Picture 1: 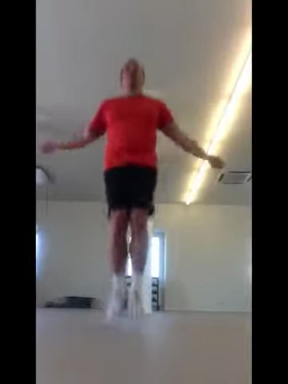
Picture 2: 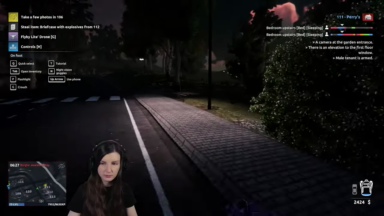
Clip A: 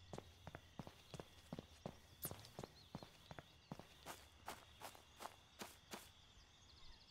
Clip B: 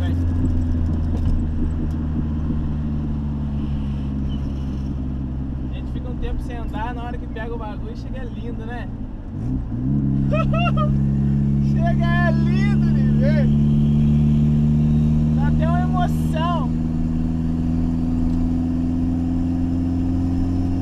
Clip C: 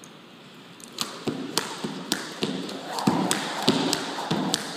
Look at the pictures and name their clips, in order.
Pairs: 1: C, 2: A